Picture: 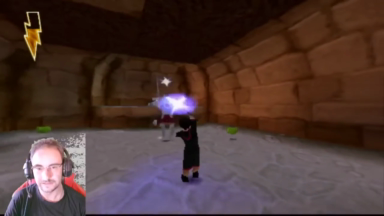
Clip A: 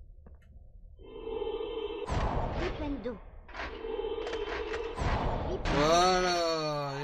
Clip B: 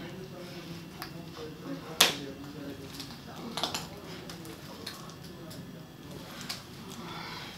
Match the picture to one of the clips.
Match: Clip A